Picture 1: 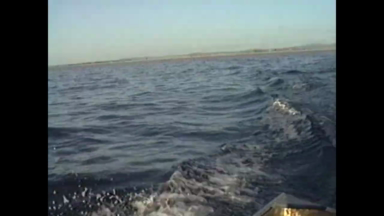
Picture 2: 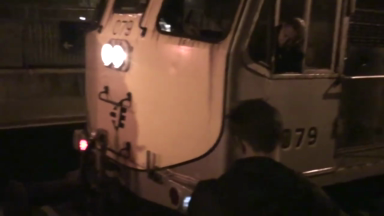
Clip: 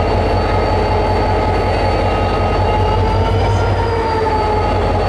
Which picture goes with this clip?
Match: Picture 2